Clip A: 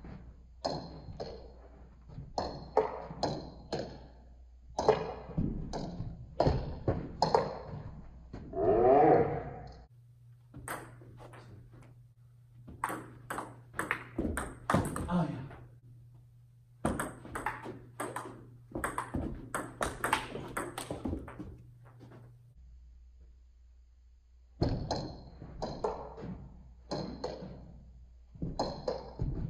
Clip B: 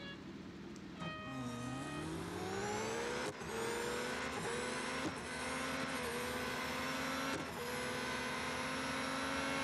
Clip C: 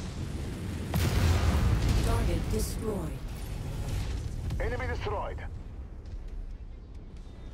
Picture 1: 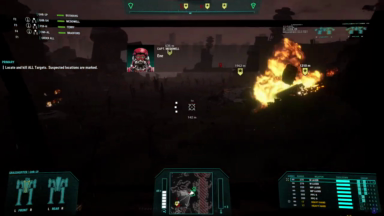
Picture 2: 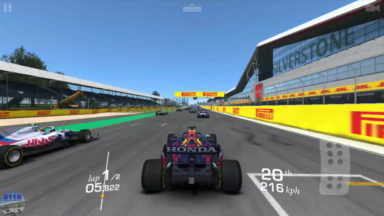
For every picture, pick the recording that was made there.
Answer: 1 C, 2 B